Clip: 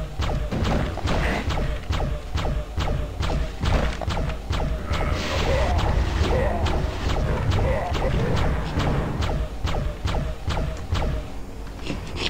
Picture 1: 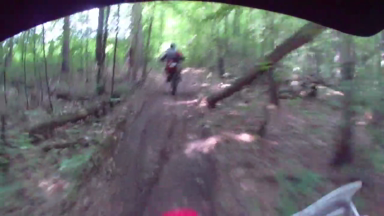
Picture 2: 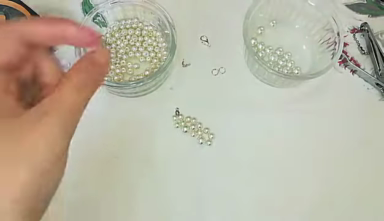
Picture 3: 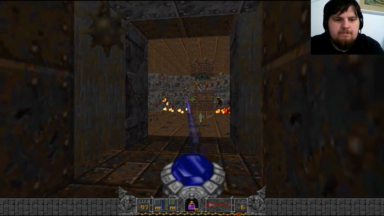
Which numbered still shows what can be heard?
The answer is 3